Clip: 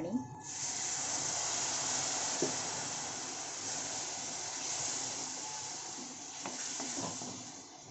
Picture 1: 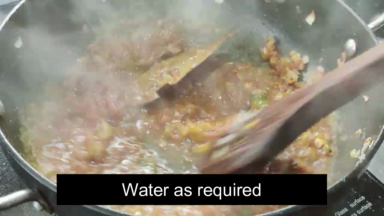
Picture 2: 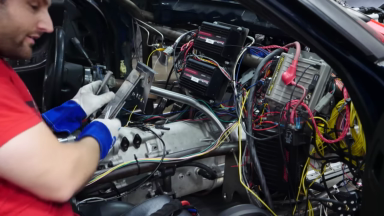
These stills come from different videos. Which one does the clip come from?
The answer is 1